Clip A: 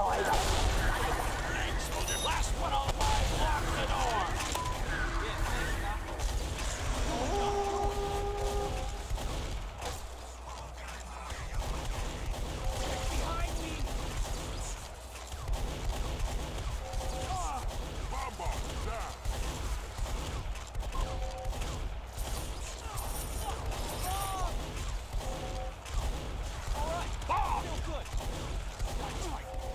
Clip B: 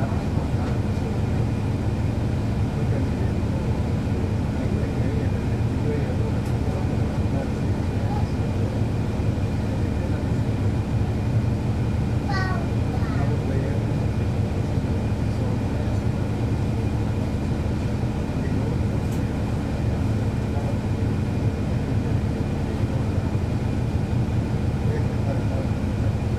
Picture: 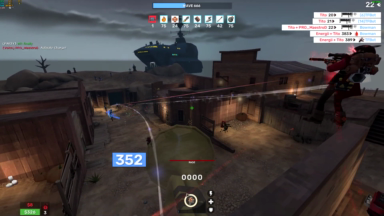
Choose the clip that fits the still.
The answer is A